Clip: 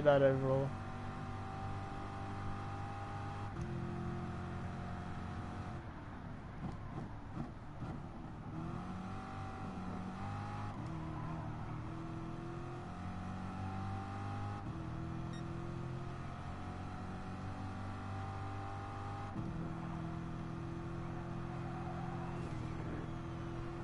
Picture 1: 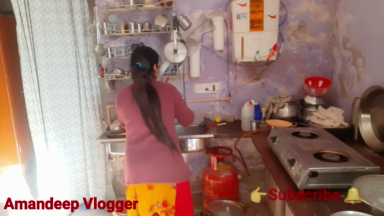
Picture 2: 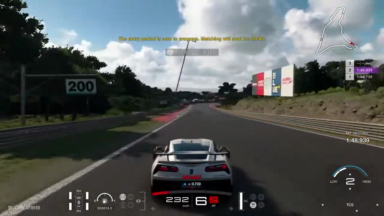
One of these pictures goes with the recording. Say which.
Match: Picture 2